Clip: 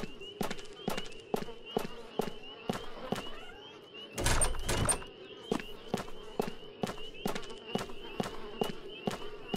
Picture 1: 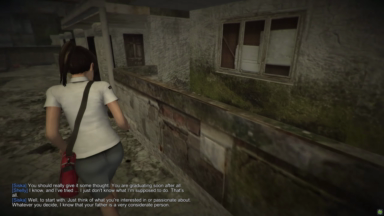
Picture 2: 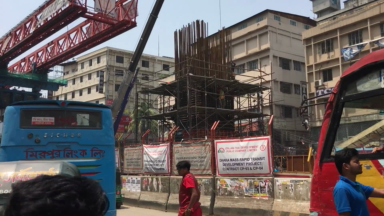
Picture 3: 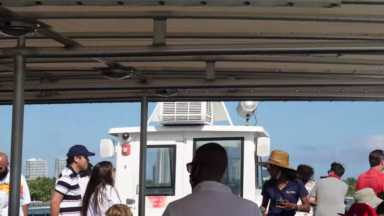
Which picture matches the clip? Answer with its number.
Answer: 1